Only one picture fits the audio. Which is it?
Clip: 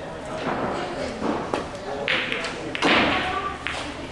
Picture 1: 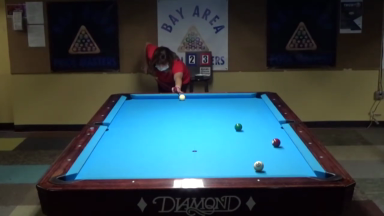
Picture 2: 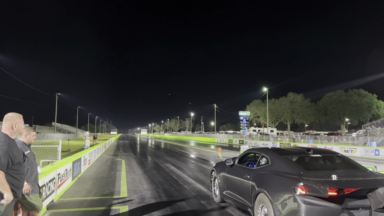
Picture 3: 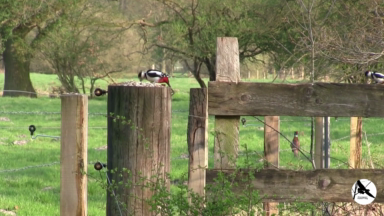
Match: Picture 1